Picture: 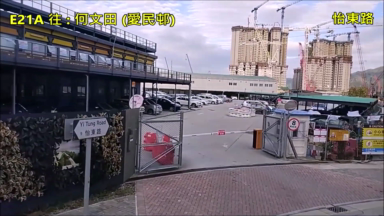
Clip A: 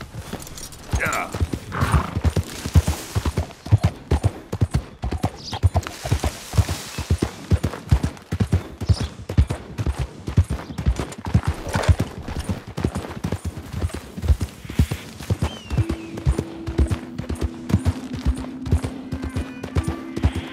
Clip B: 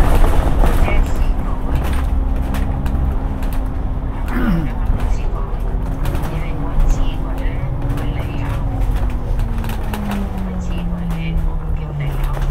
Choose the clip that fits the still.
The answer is B